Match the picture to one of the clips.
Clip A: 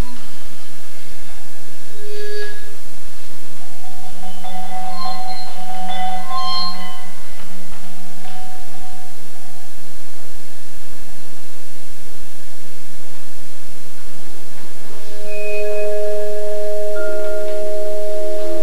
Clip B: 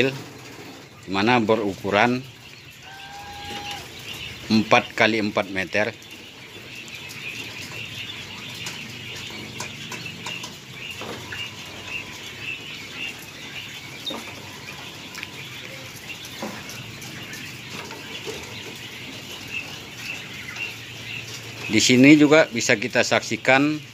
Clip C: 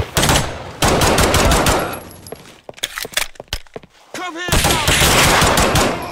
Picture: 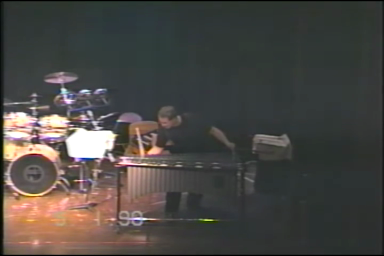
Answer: A